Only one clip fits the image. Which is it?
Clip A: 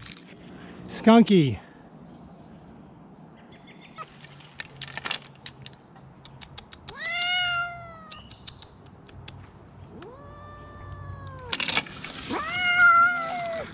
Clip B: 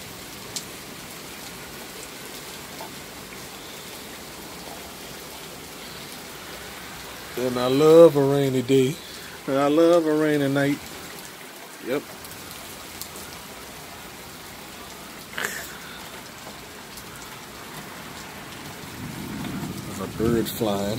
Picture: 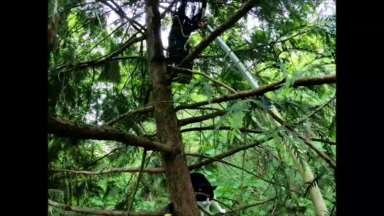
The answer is A